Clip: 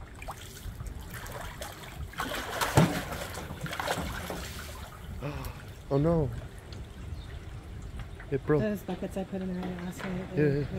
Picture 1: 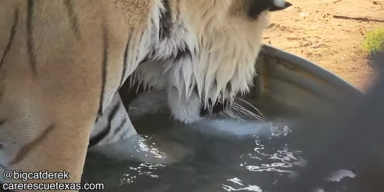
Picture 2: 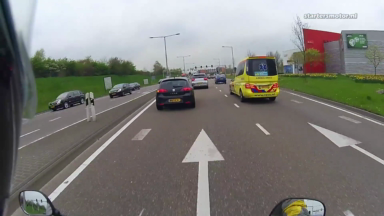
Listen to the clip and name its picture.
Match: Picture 1